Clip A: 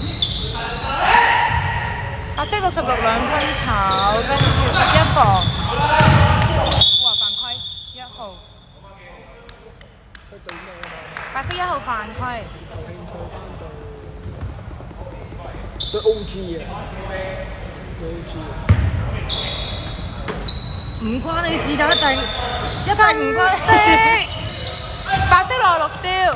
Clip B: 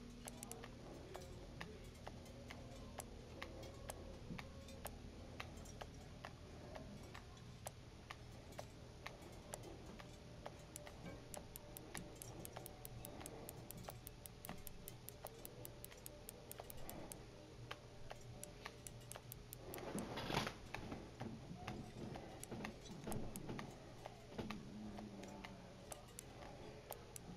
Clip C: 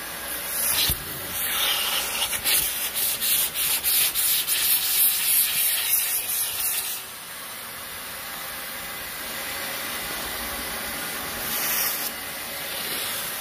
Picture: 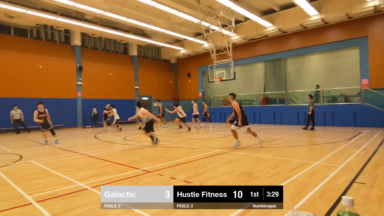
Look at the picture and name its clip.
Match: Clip A